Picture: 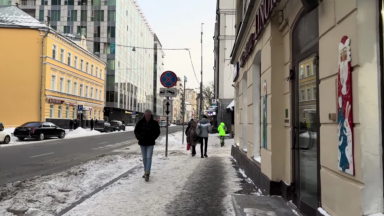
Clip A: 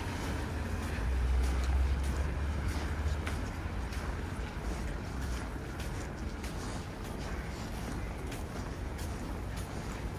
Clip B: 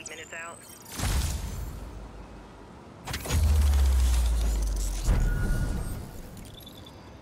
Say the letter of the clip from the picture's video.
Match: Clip A